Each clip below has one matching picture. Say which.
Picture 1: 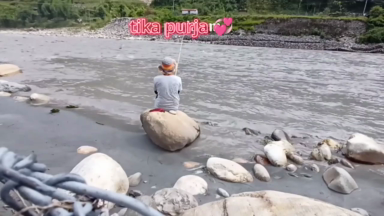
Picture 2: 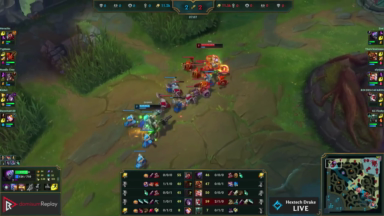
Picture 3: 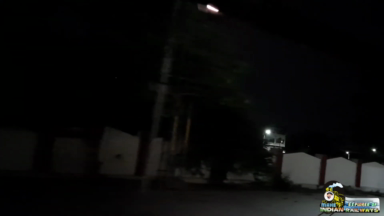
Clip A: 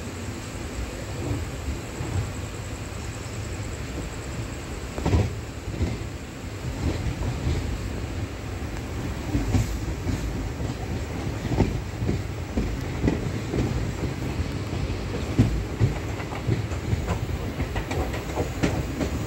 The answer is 3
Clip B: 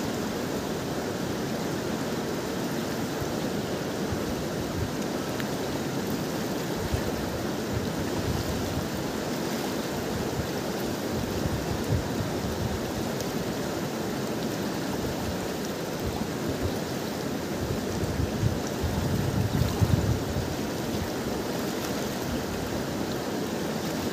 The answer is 1